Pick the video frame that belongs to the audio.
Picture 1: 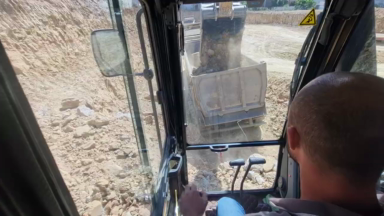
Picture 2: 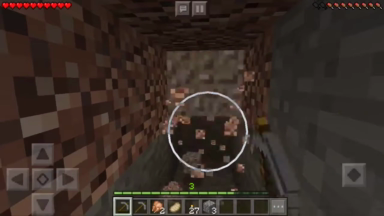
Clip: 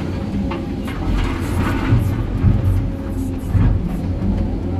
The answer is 1